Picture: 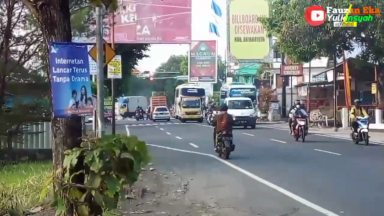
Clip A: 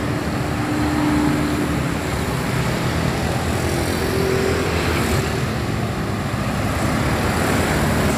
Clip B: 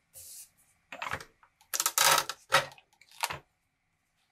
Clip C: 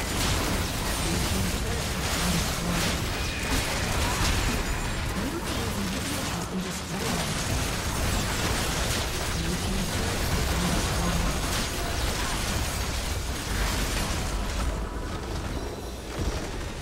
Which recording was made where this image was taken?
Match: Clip A